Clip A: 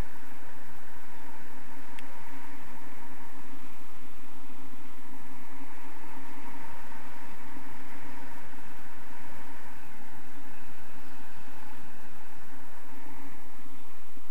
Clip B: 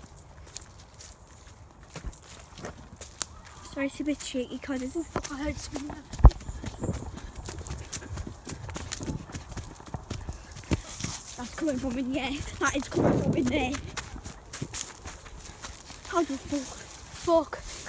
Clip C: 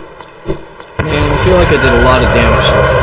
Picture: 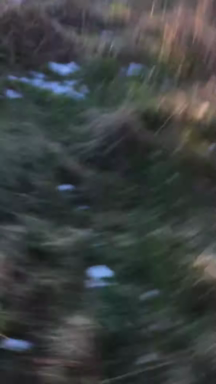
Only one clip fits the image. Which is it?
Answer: B